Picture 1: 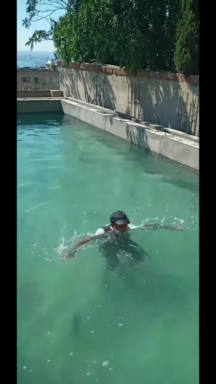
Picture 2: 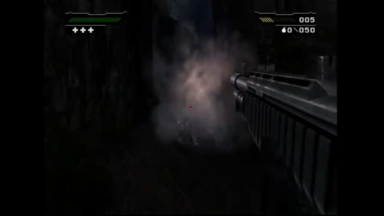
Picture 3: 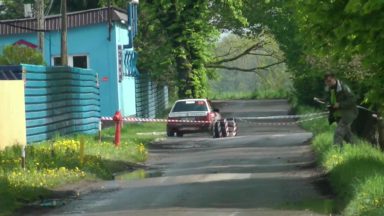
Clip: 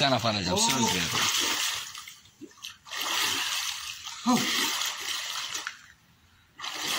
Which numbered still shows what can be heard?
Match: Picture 1